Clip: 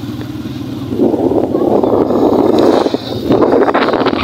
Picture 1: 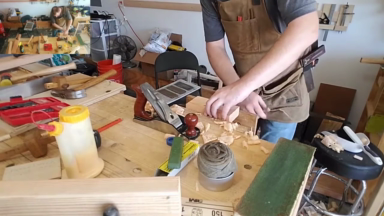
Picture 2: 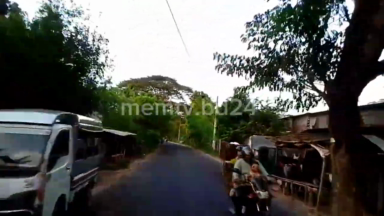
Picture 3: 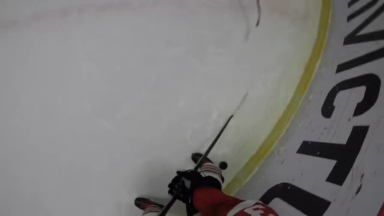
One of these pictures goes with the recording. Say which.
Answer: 2